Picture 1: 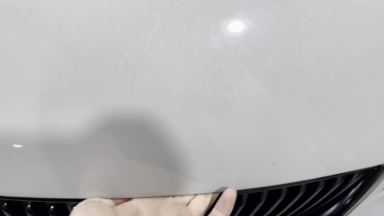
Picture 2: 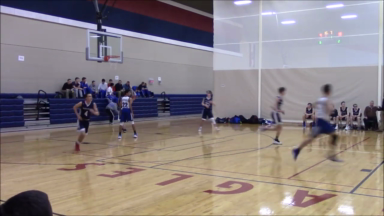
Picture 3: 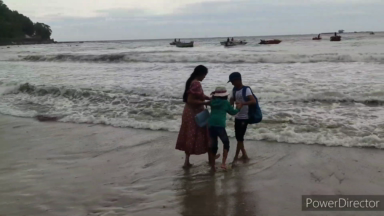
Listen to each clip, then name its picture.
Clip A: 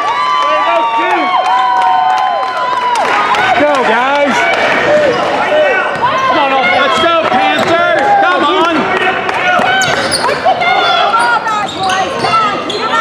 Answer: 2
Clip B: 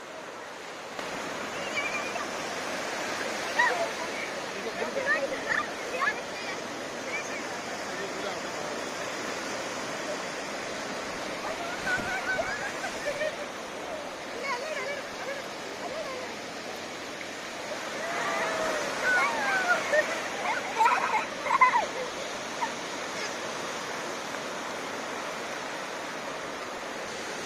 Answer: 3